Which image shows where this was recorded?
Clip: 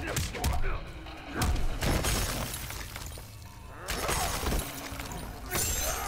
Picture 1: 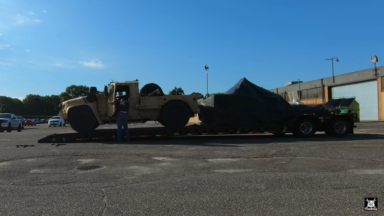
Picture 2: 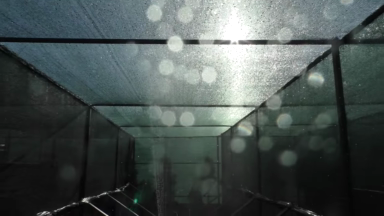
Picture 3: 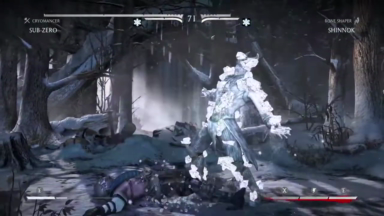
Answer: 3